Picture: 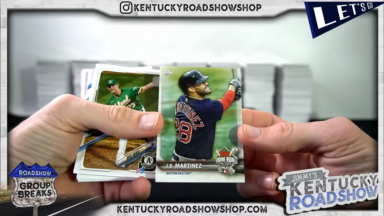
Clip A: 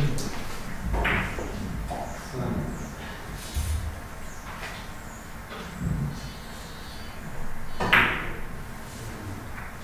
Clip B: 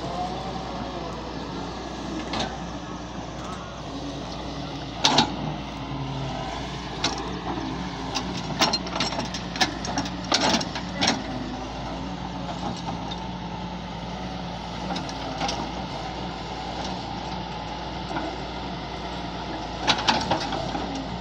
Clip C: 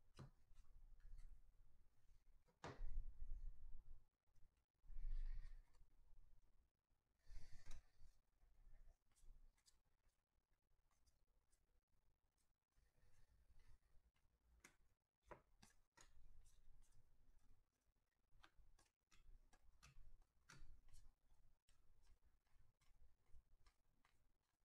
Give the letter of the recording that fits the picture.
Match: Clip C